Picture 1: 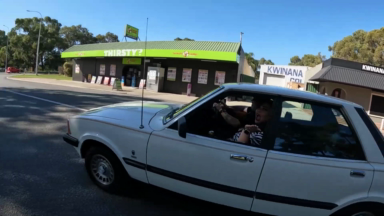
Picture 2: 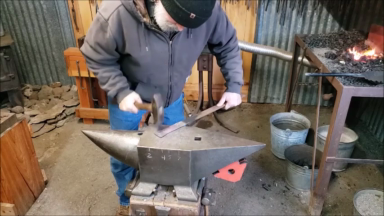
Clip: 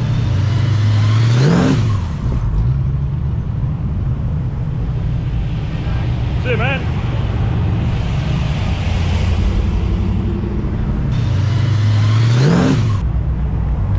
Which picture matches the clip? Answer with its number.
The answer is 1